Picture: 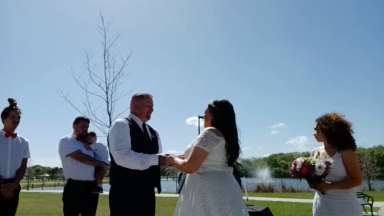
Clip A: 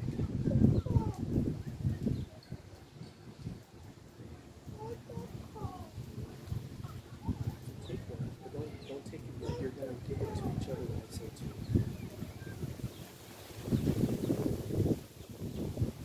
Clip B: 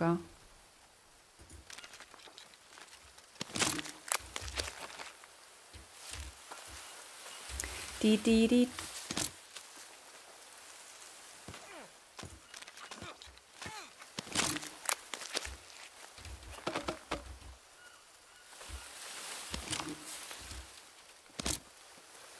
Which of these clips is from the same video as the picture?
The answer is A